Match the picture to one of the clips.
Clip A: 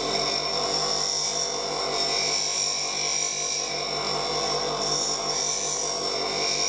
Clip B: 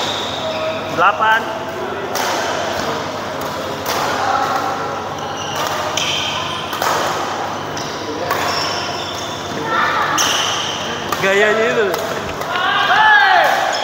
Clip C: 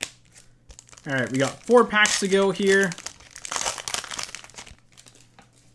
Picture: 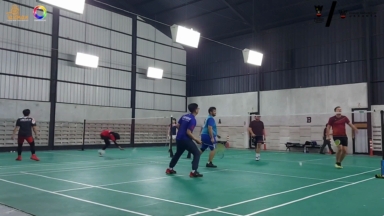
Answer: B